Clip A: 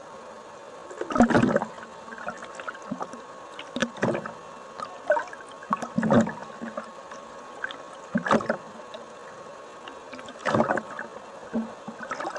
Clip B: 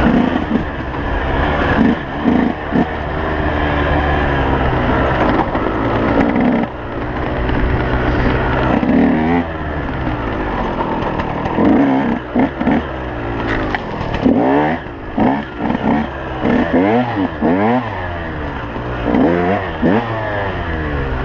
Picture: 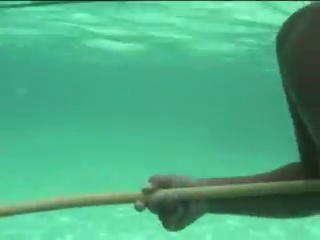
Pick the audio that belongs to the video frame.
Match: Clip A